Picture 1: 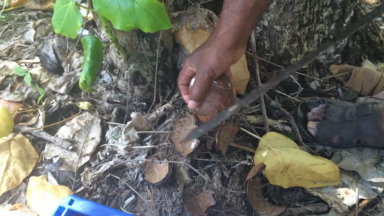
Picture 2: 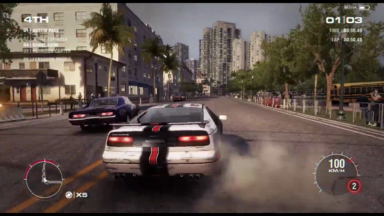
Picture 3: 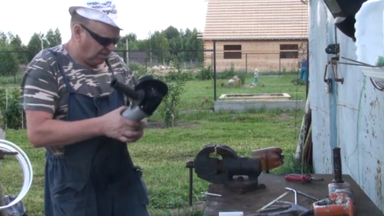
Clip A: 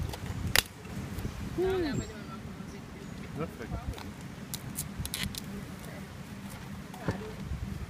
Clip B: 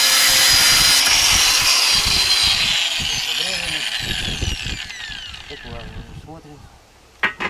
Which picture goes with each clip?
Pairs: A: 1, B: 3